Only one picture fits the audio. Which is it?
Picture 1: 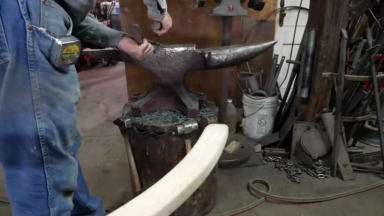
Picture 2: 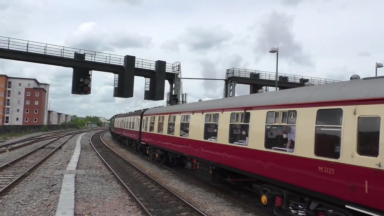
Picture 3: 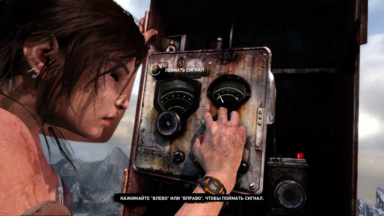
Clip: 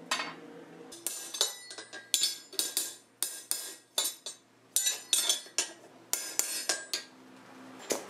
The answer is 1